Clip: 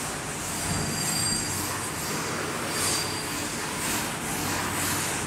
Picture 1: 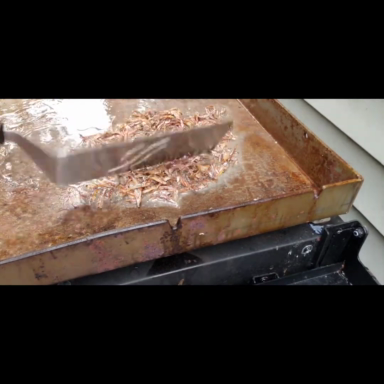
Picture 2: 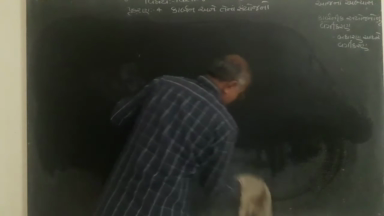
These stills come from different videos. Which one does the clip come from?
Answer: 2